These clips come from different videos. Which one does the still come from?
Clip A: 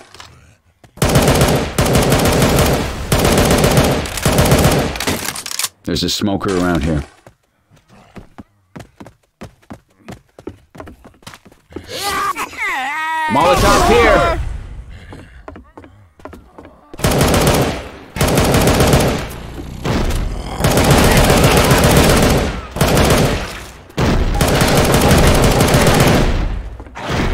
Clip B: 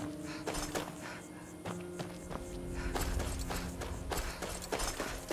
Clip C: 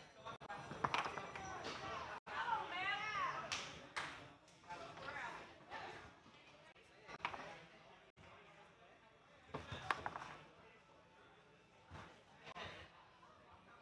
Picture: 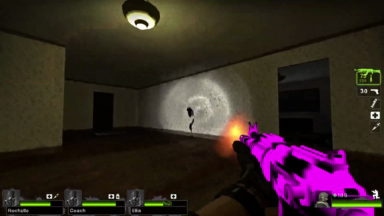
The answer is A